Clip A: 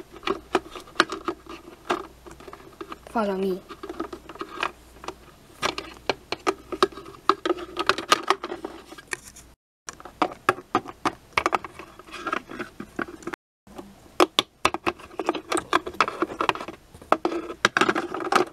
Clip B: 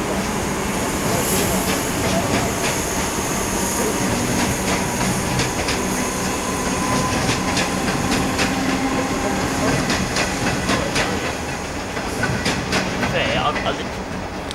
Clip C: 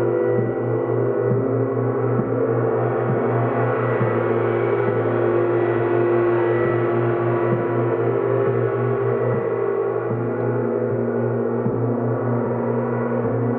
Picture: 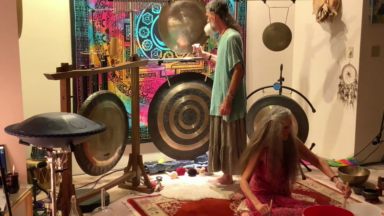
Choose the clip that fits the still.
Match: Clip C